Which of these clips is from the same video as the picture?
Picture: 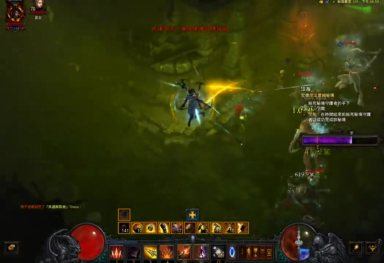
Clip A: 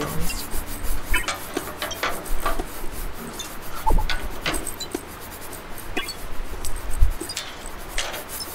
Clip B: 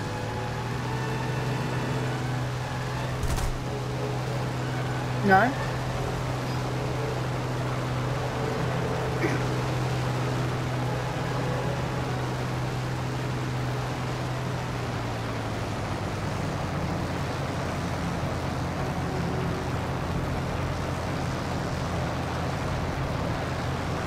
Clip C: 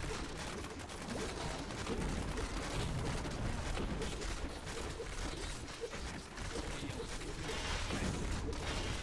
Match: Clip C